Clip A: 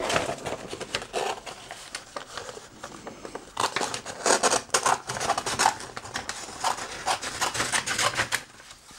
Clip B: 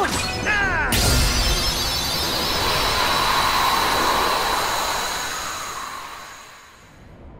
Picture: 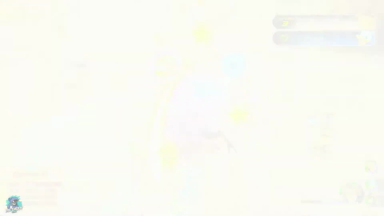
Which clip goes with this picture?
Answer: B